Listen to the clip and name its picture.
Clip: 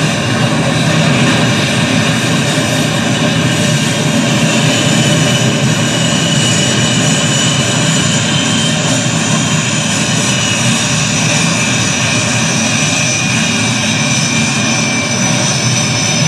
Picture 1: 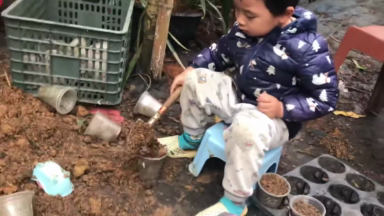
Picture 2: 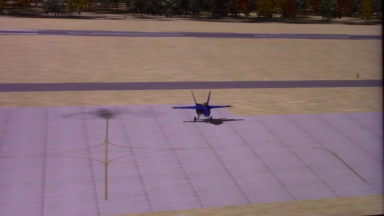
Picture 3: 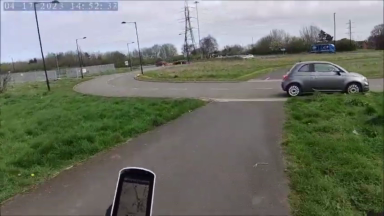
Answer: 2